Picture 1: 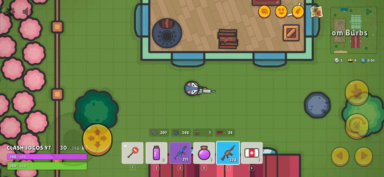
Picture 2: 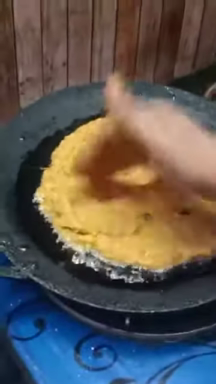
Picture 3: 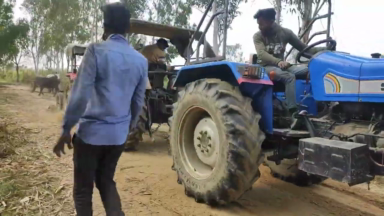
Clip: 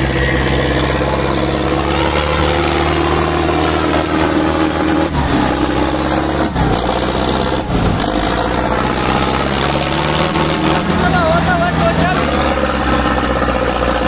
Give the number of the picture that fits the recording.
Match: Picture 3